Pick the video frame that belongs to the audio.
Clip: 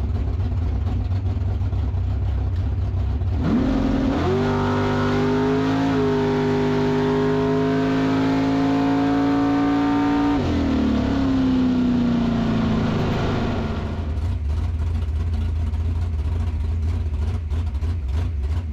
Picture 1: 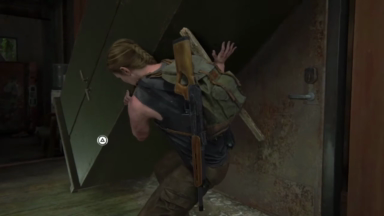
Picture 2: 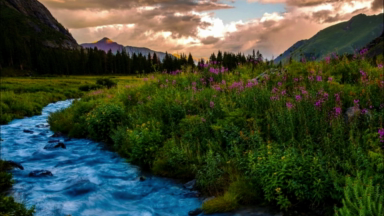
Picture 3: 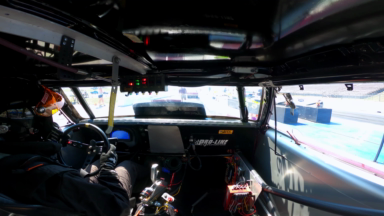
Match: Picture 3